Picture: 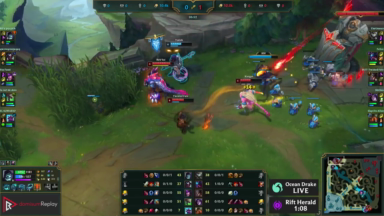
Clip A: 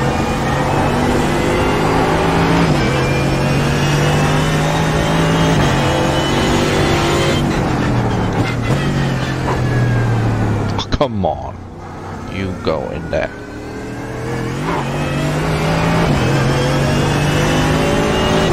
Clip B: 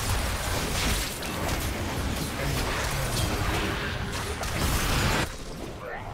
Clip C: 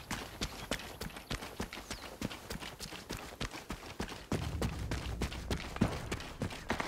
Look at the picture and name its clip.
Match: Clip B